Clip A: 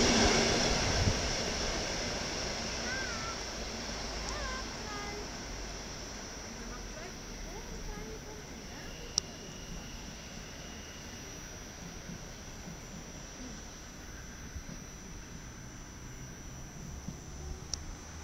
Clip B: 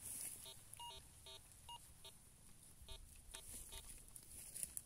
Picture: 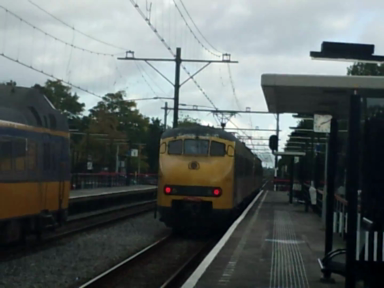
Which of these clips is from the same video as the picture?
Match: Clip A